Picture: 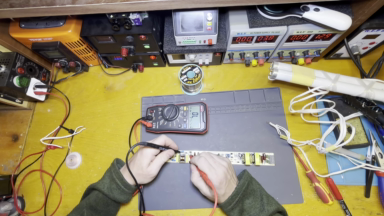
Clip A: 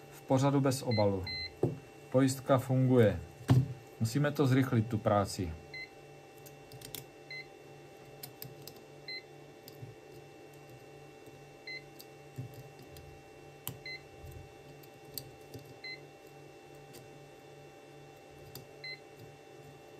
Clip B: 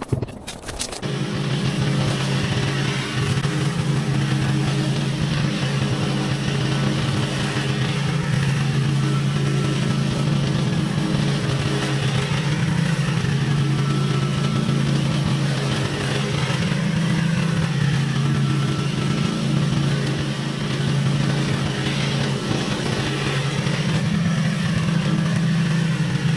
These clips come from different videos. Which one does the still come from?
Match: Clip A